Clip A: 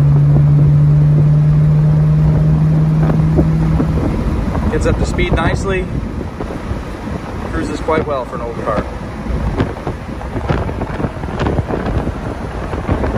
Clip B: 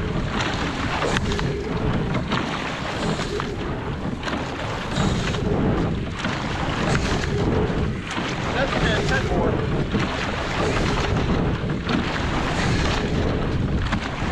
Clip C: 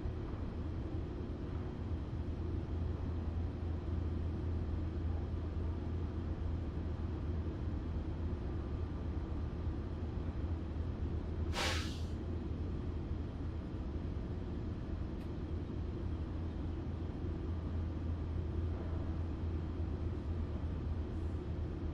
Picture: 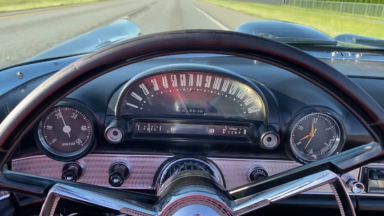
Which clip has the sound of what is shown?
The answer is A